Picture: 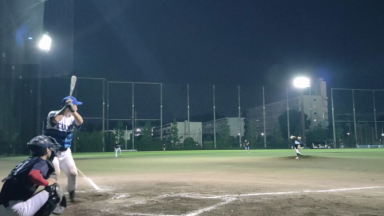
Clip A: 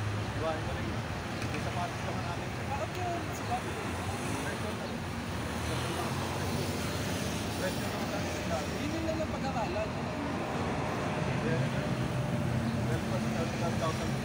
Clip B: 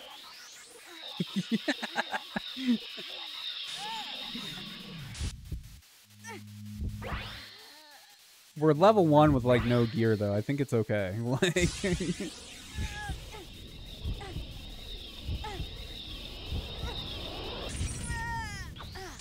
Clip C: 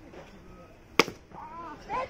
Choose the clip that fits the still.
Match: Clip C